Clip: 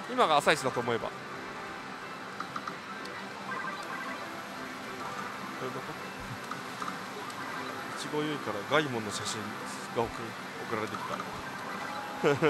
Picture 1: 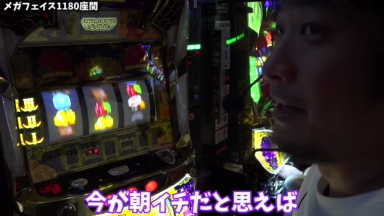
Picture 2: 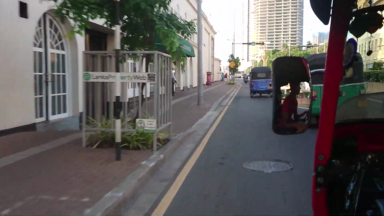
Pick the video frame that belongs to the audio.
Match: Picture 1